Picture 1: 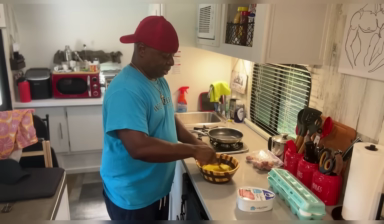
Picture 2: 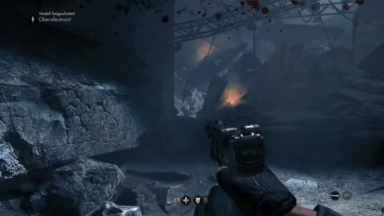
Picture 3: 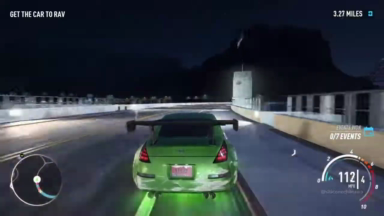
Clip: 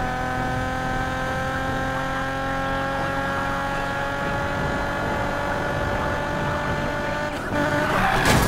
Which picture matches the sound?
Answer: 3